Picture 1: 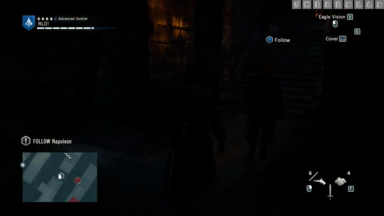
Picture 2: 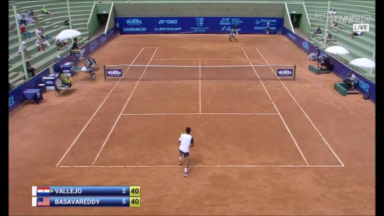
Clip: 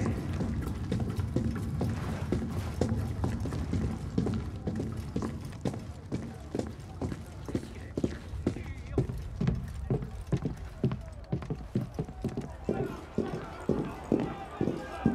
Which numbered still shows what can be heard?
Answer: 1